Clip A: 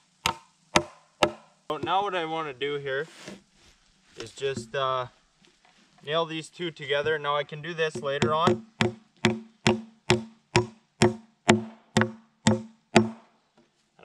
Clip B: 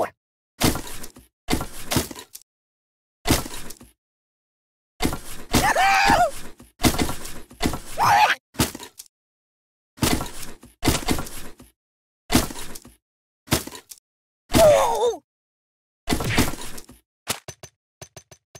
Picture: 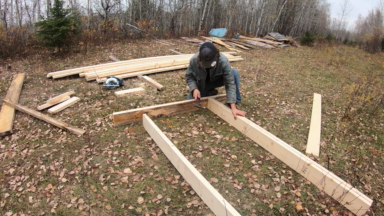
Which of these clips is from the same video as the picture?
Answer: A